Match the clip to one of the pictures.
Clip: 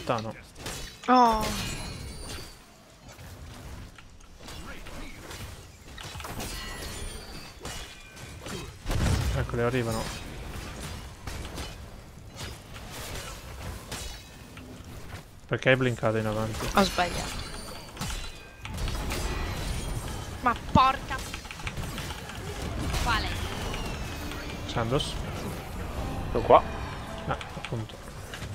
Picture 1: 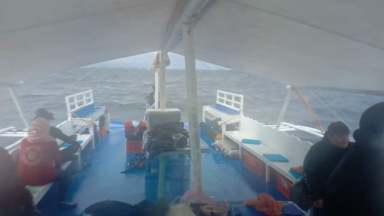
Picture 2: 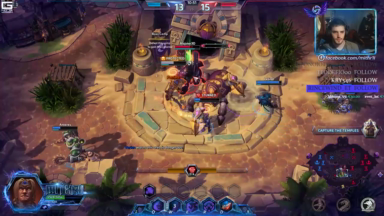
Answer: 2